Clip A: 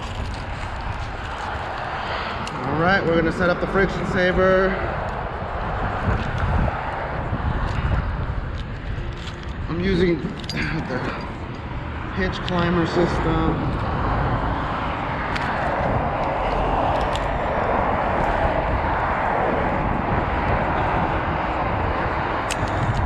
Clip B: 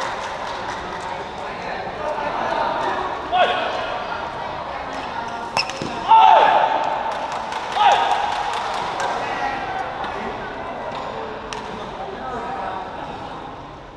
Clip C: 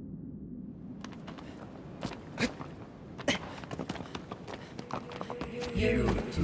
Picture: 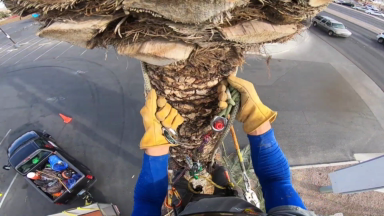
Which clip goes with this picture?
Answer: A